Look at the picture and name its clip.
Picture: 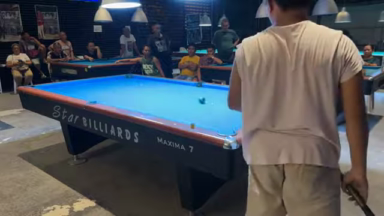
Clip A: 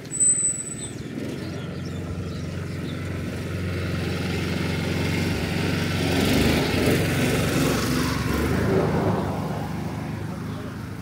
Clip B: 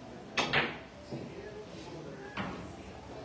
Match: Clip B